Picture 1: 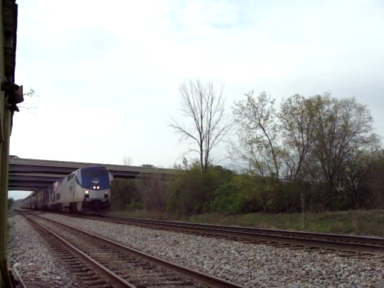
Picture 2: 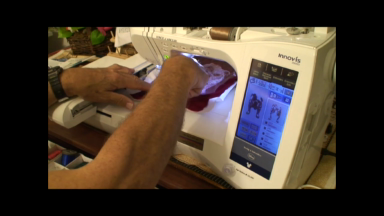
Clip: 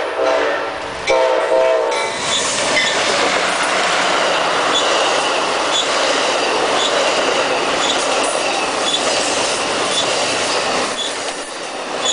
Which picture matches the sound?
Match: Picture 1